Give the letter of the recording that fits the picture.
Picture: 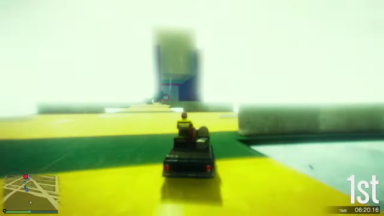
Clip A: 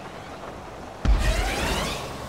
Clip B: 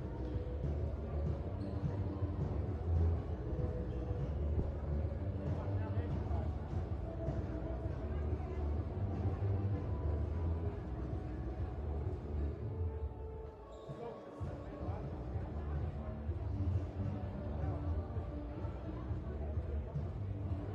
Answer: A